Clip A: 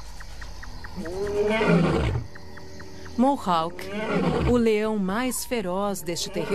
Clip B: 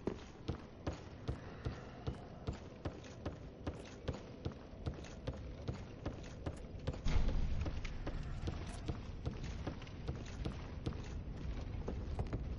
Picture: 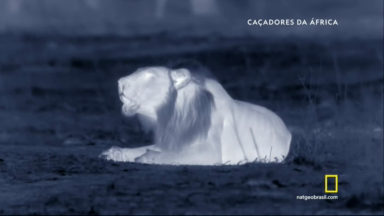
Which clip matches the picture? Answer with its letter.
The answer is A